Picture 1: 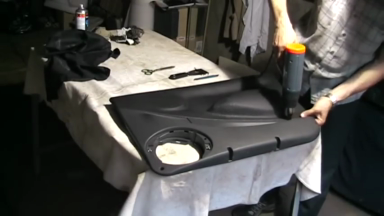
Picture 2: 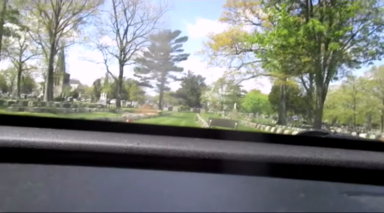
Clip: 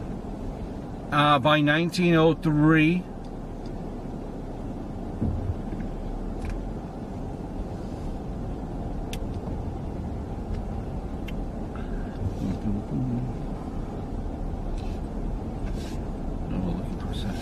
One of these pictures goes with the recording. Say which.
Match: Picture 2